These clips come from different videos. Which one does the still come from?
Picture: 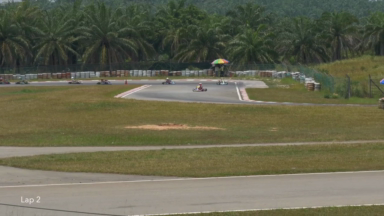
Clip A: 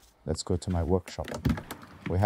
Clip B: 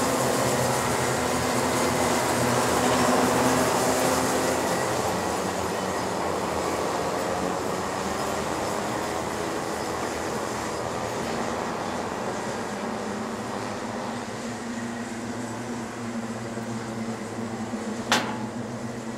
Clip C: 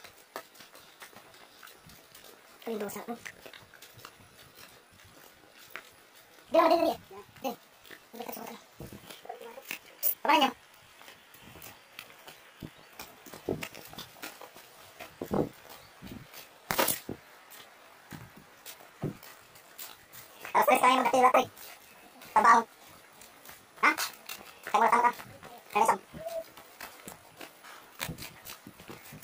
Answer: B